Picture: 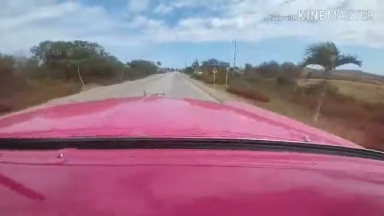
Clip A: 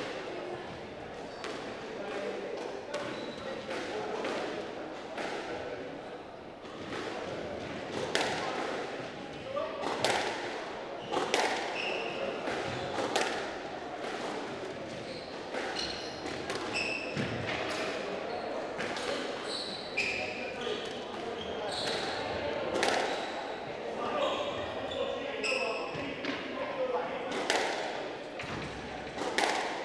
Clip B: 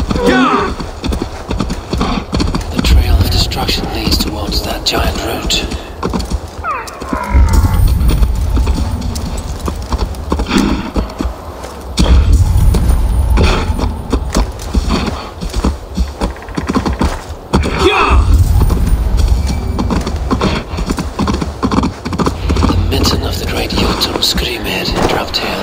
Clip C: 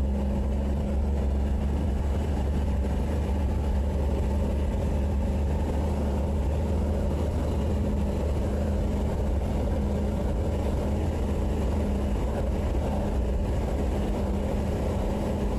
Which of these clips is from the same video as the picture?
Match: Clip C